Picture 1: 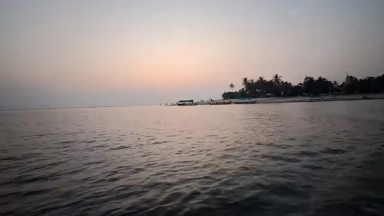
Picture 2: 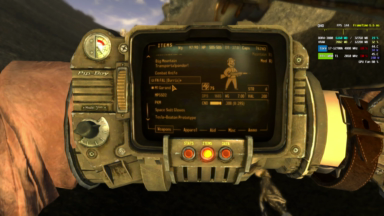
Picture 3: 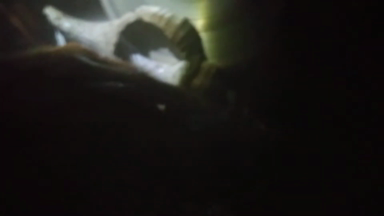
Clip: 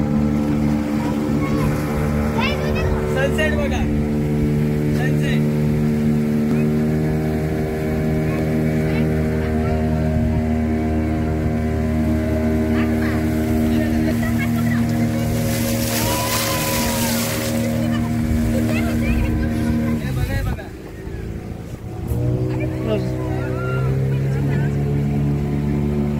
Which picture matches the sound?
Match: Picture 1